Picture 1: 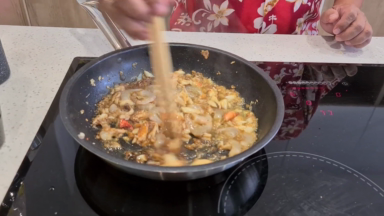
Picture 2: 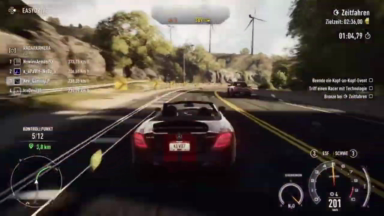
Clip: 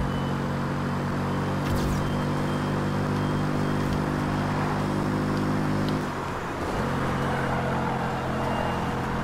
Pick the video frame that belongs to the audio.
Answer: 2